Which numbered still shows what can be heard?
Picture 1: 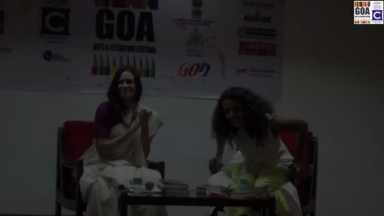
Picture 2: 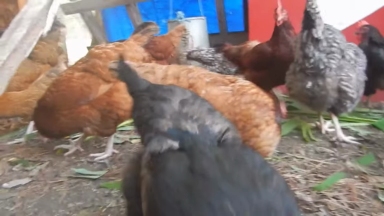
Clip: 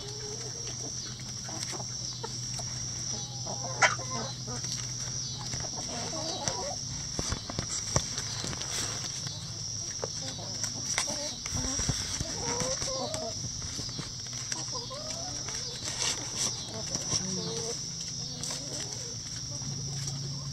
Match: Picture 2